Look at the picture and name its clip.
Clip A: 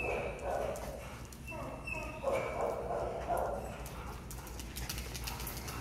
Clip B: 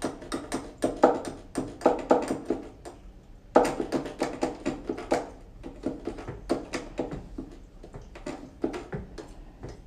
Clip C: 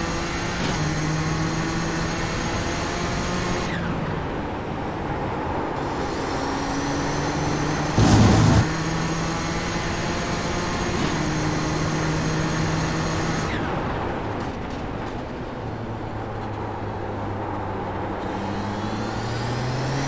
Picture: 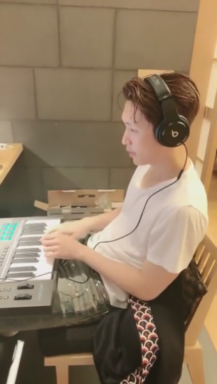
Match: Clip B